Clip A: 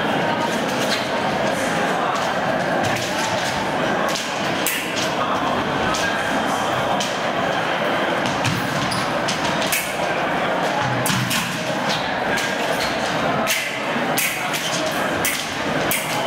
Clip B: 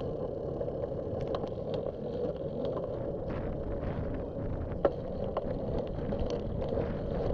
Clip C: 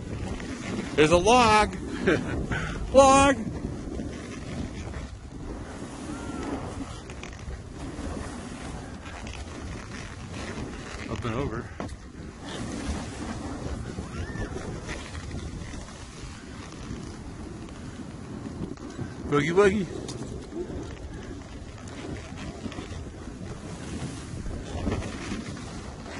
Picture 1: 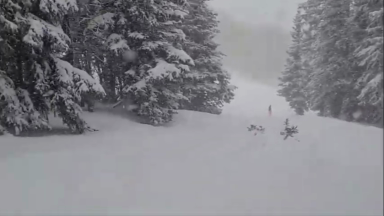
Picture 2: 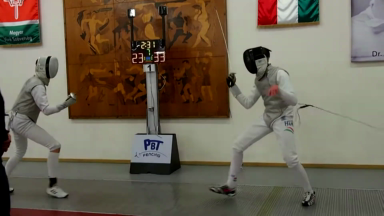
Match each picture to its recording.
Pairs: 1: C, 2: A